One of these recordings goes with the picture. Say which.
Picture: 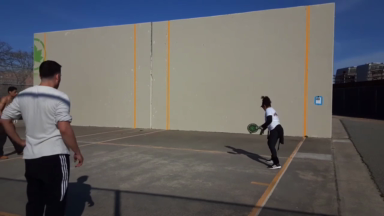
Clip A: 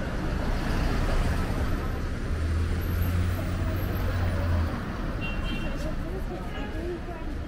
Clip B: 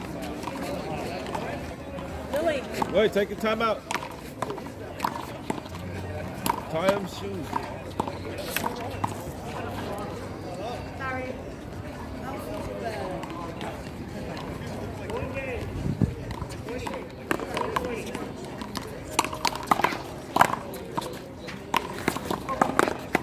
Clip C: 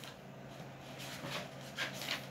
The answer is B